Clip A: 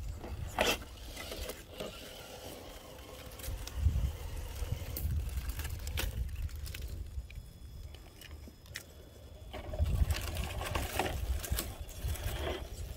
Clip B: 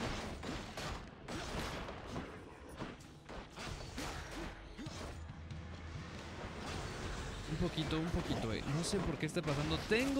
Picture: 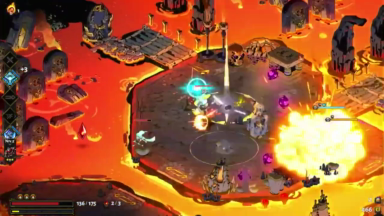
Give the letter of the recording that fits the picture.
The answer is B